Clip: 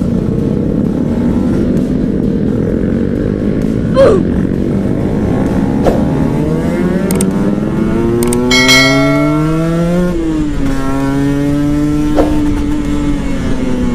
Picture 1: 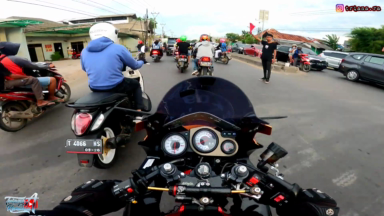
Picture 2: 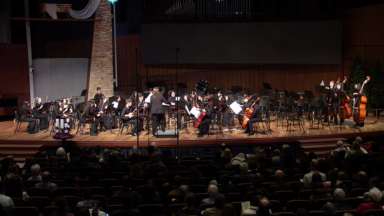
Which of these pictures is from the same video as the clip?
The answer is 1